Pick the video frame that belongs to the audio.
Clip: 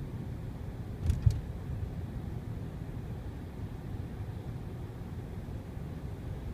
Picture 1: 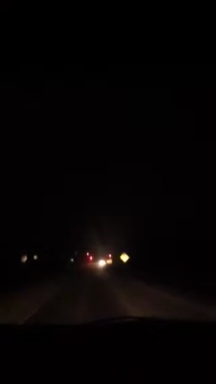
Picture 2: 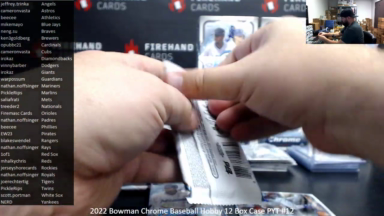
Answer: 1